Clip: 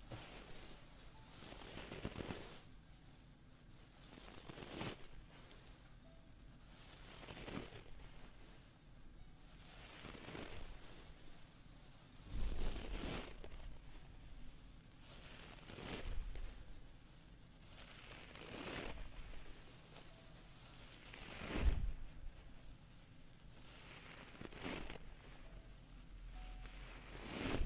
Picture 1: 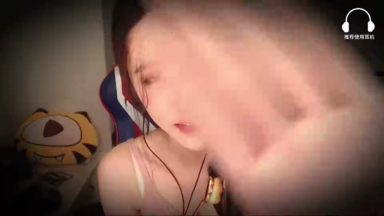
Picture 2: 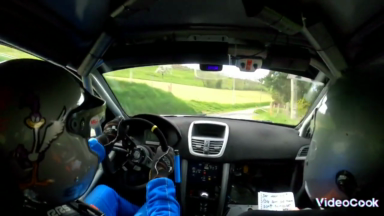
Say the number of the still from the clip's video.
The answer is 1